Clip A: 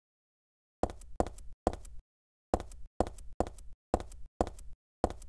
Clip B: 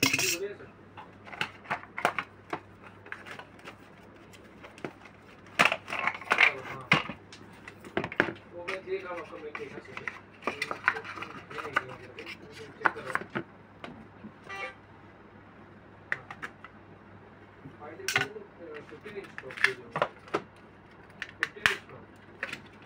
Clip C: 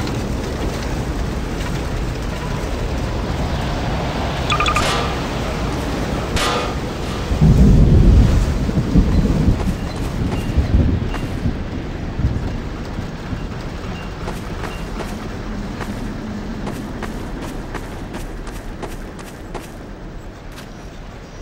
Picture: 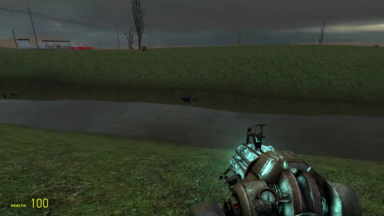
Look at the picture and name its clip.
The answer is C